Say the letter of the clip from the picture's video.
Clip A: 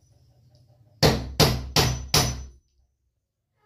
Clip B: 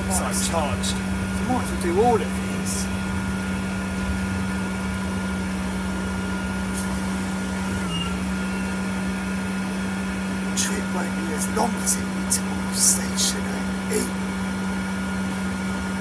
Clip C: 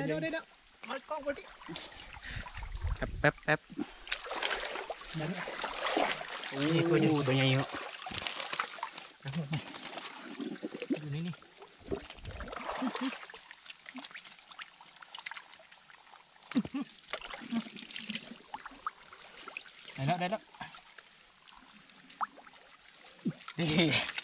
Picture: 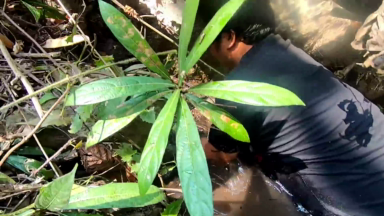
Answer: C